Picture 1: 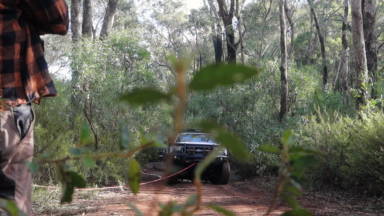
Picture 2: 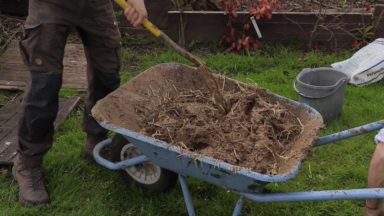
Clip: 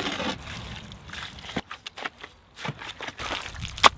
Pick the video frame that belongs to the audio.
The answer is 2